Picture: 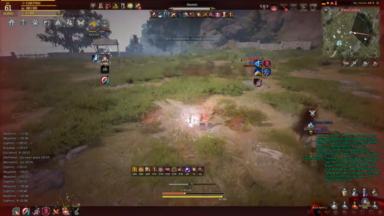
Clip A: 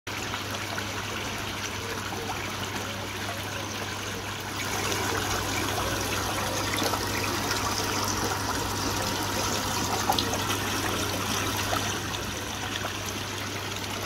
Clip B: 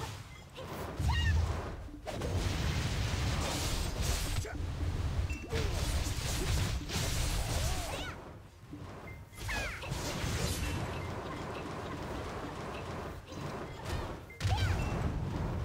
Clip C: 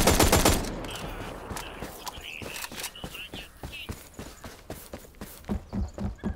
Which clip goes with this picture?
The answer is B